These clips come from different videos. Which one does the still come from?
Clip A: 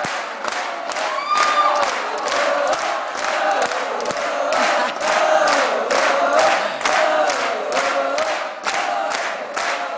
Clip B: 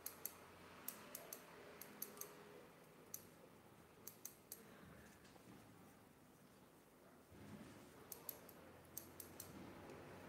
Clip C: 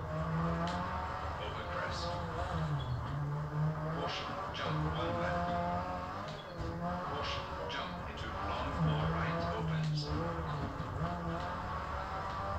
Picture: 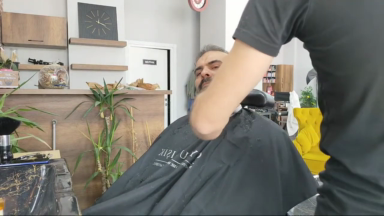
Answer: B